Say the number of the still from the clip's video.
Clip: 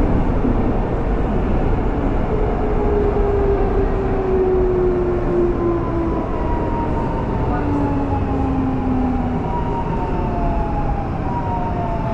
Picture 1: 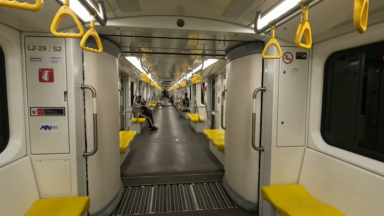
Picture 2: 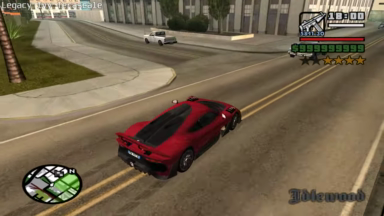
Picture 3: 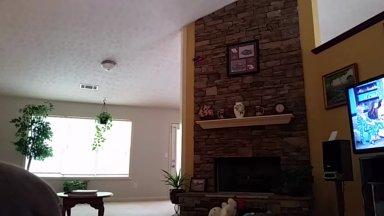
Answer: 1